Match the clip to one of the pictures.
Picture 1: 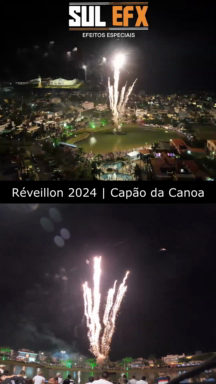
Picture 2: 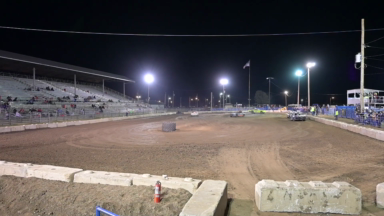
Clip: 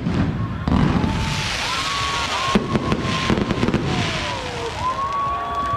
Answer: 1